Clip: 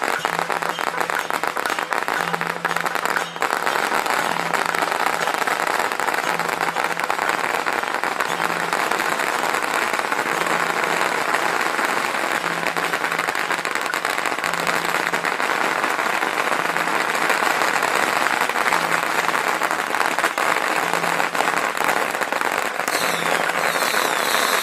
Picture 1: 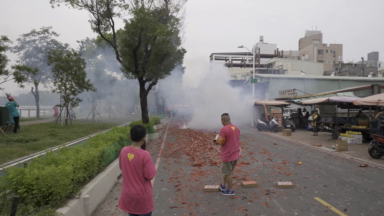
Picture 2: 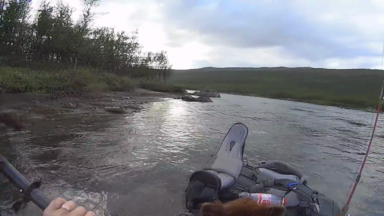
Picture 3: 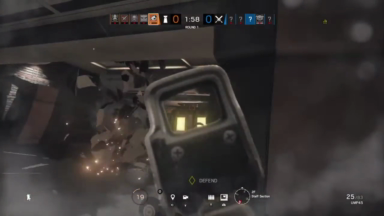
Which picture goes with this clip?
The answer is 1